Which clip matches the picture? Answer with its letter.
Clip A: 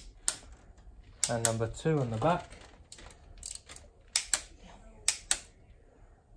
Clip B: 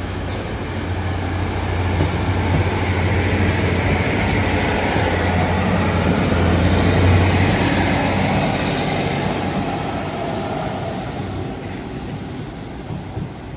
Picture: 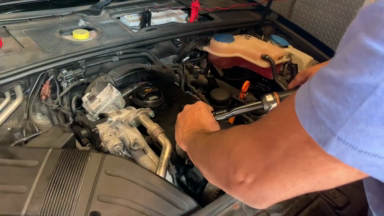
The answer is A